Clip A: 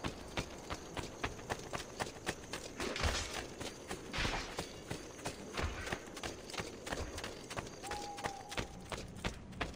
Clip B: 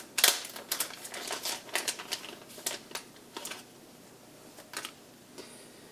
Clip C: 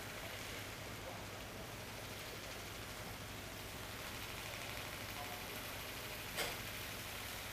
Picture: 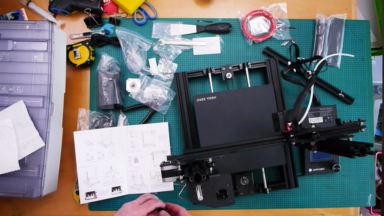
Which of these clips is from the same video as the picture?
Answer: B